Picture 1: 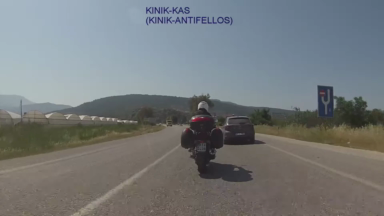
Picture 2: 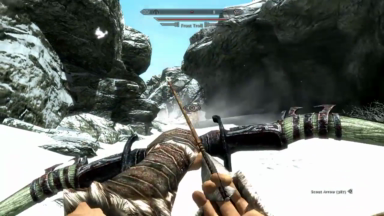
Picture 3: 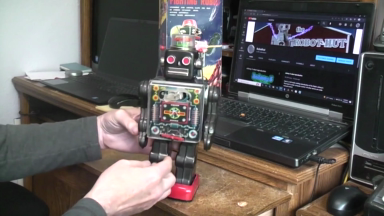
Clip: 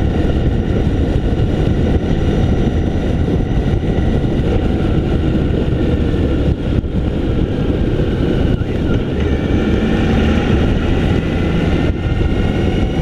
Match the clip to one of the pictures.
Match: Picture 1